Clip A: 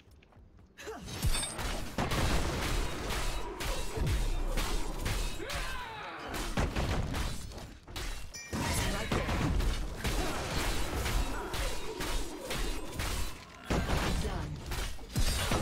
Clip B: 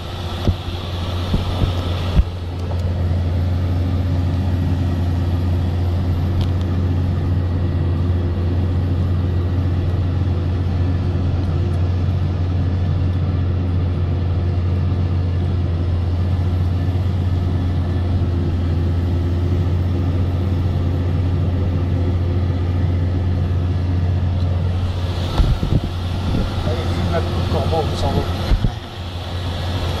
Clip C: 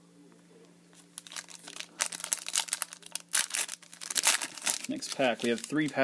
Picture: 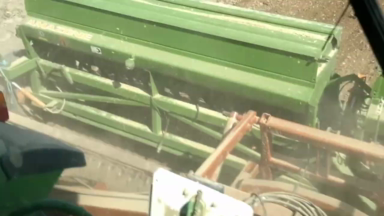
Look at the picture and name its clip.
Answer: B